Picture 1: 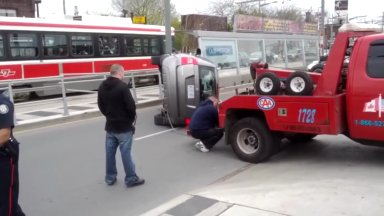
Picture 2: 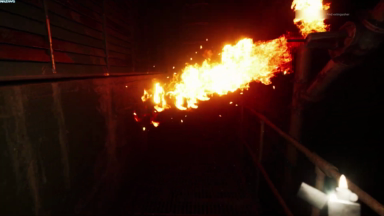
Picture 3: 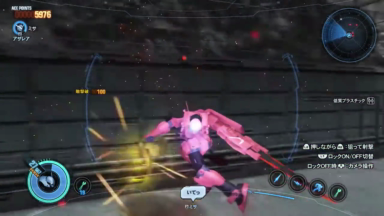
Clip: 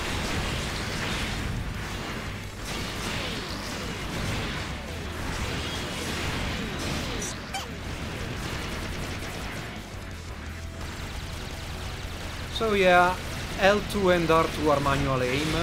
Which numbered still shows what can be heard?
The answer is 3